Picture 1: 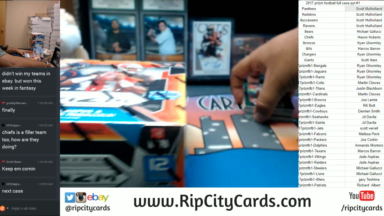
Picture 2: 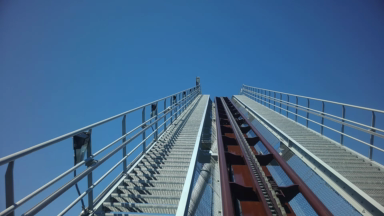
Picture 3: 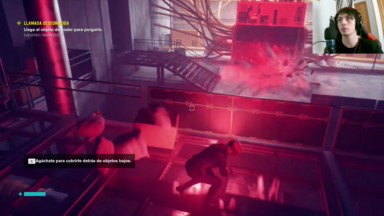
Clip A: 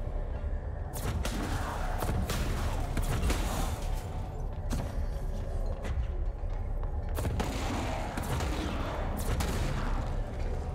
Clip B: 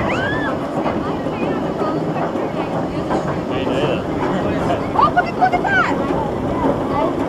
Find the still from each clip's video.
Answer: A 3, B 2